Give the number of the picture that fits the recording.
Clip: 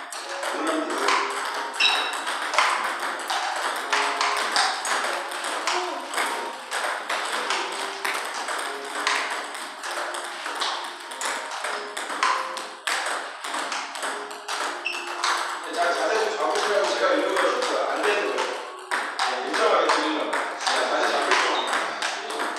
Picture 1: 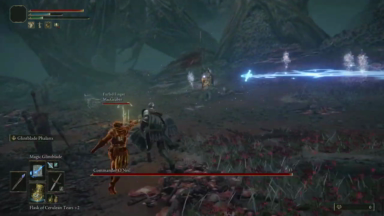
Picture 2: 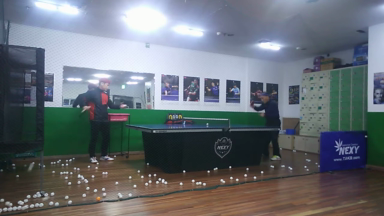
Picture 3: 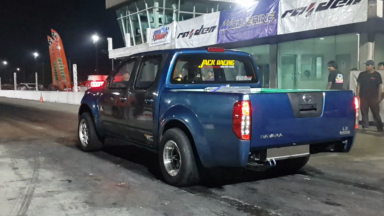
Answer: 2